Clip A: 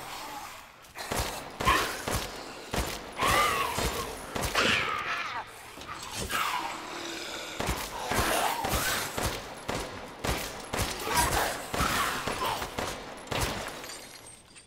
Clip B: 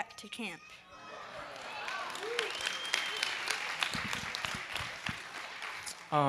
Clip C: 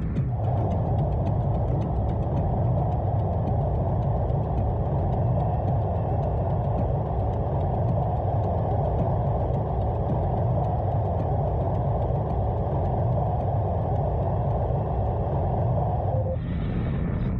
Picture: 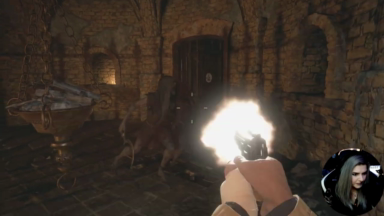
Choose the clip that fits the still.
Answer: A